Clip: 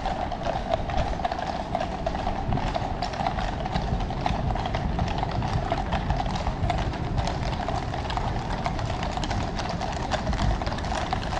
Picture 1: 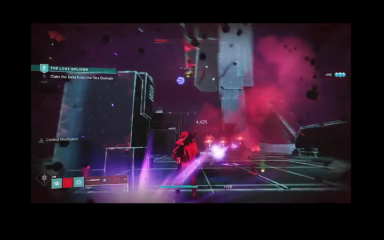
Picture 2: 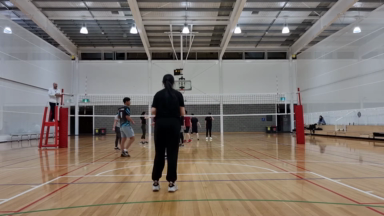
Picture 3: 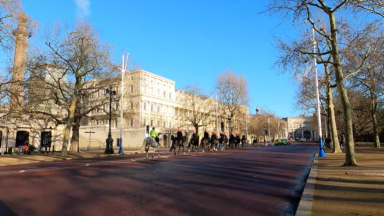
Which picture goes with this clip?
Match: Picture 3